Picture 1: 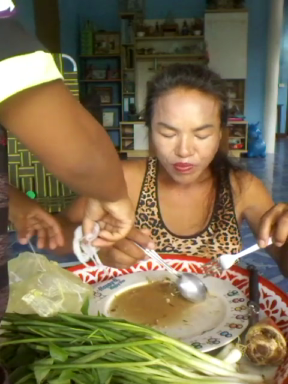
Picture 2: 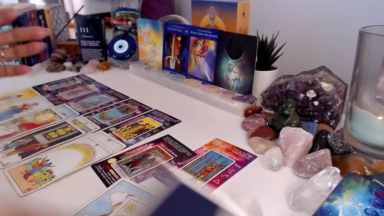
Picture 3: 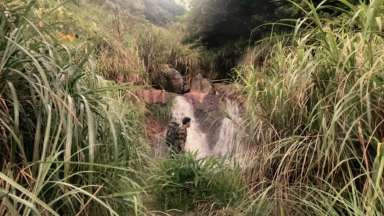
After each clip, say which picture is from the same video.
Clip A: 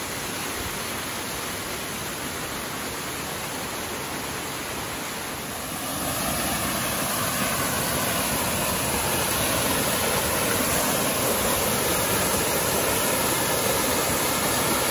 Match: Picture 3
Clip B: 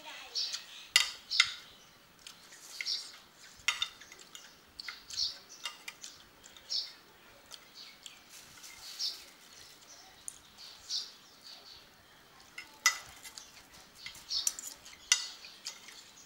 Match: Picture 1